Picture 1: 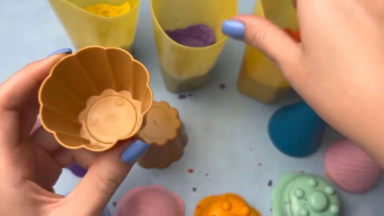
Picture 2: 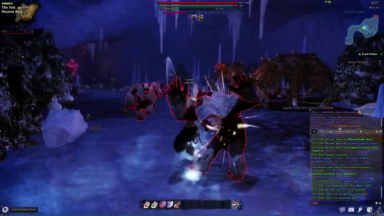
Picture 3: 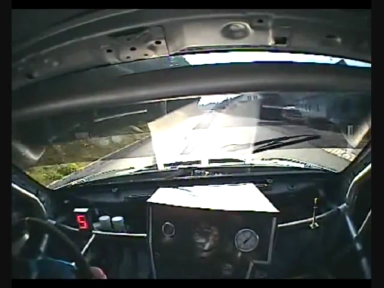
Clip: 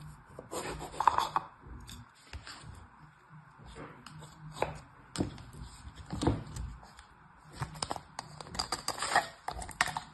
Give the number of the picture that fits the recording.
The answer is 1